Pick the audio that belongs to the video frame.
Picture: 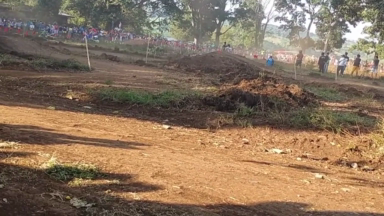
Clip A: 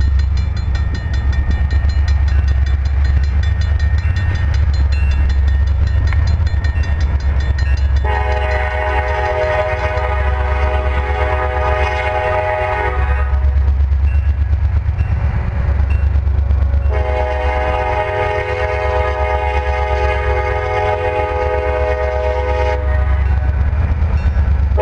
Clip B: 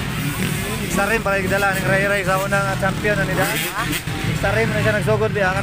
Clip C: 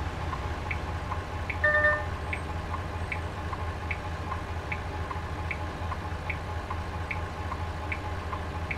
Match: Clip B